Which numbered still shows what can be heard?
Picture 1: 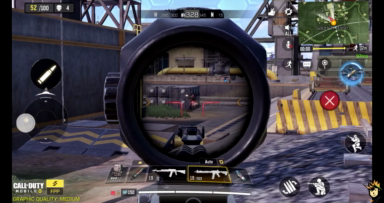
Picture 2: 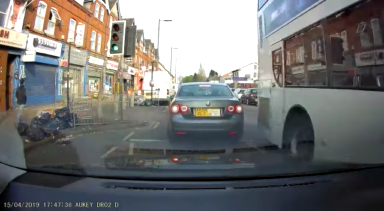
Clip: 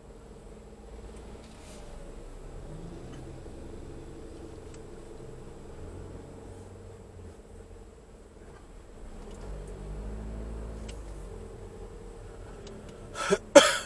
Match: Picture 2